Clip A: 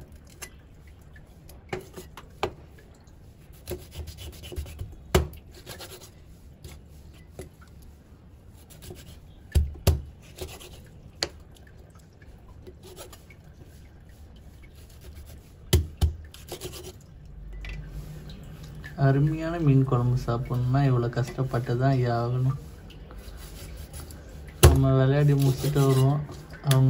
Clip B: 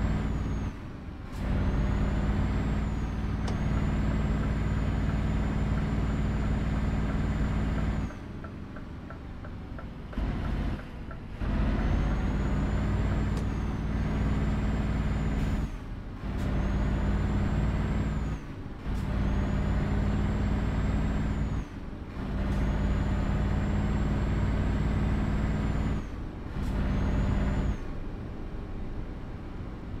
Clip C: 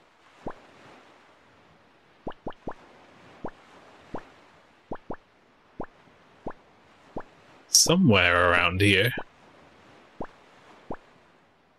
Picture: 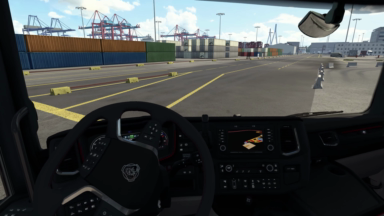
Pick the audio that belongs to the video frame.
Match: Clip B